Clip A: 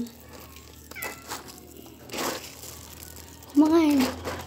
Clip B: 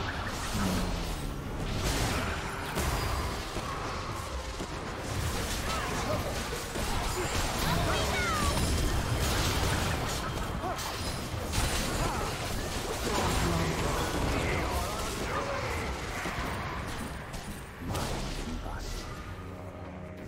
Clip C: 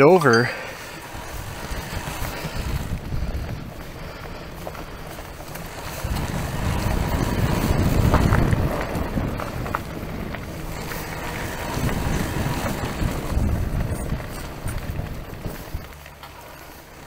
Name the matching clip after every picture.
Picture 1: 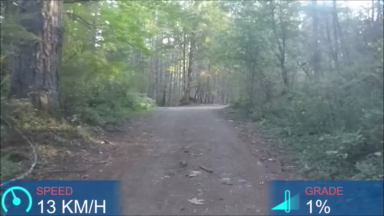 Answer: C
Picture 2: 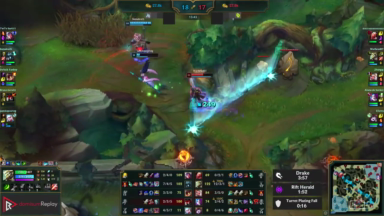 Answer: B